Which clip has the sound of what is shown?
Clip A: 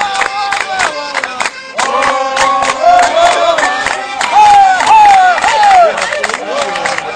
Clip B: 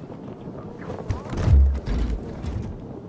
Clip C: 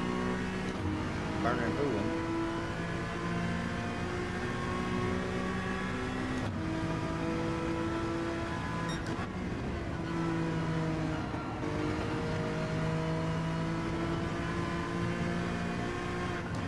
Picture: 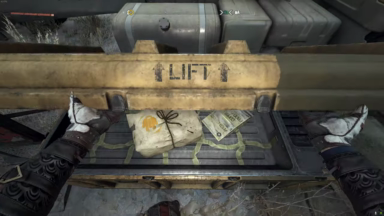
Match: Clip B